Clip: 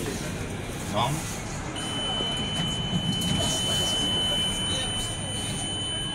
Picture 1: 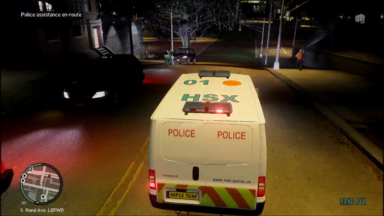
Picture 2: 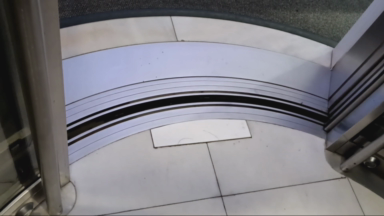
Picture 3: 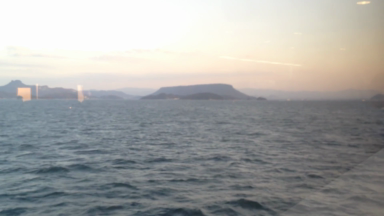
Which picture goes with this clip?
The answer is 2